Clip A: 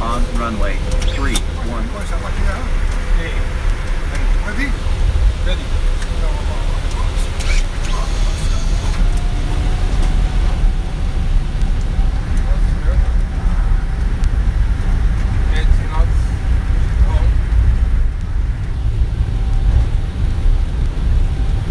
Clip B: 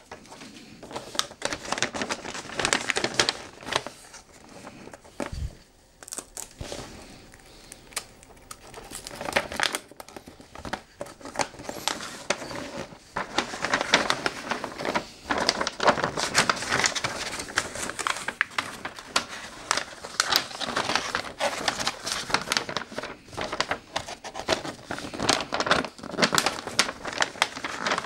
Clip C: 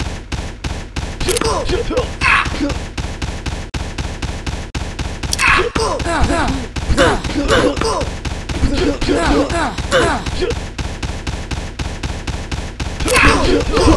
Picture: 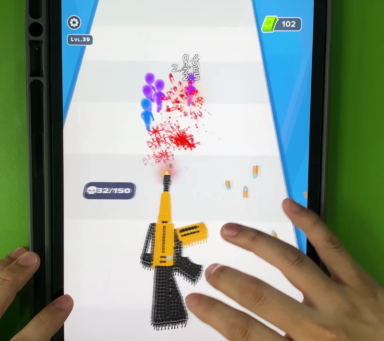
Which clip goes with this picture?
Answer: C